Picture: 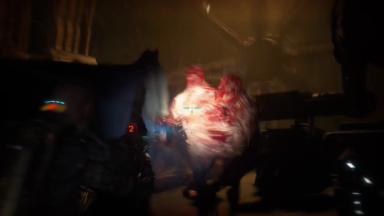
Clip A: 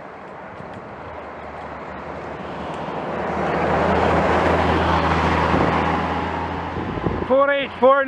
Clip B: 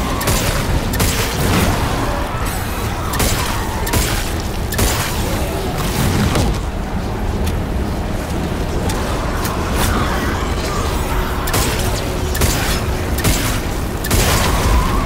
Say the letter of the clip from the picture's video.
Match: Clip B